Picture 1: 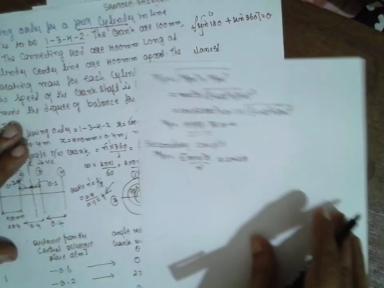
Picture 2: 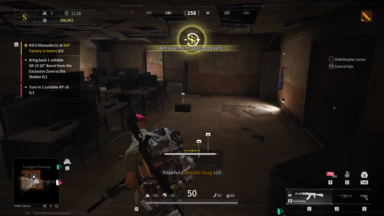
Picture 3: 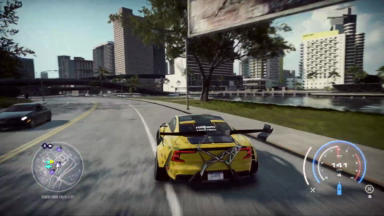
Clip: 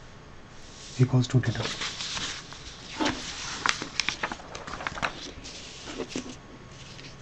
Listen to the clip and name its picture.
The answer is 1